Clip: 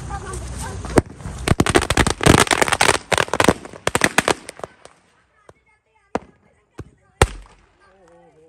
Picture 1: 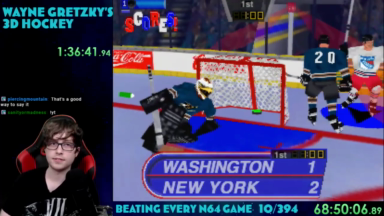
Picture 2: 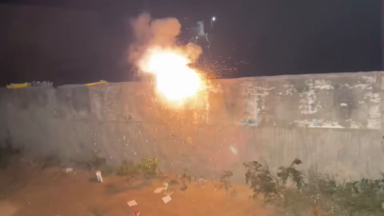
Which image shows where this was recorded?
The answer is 2